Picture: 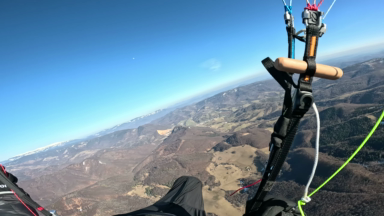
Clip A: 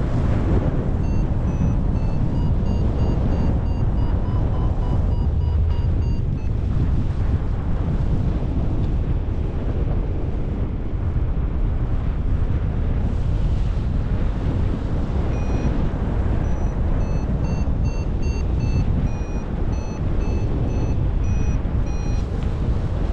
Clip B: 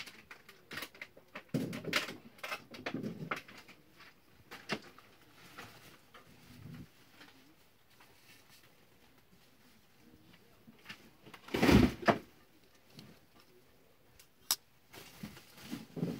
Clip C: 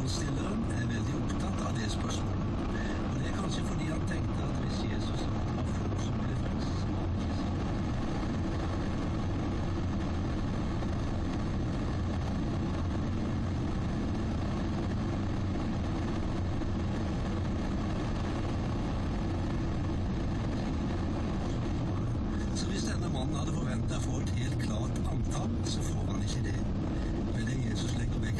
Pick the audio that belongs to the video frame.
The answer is A